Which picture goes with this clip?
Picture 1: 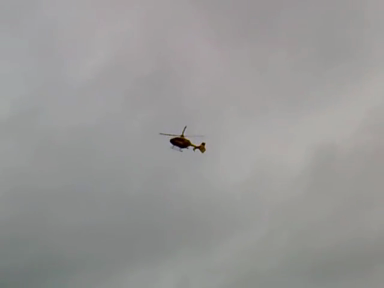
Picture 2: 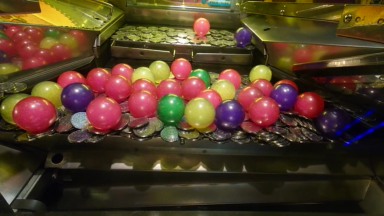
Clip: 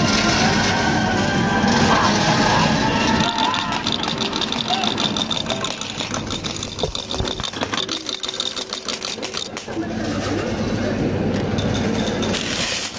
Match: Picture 2